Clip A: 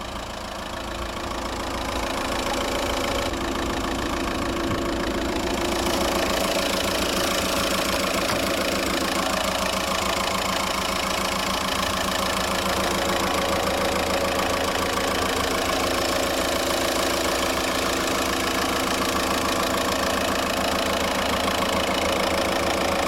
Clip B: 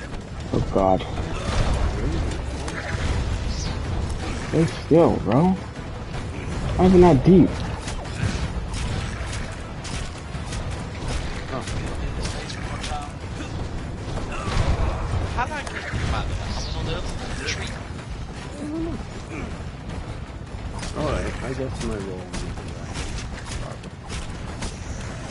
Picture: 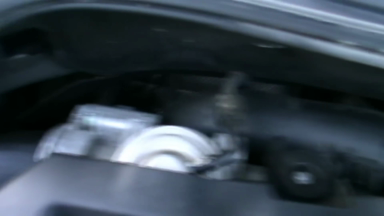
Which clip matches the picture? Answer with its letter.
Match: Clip A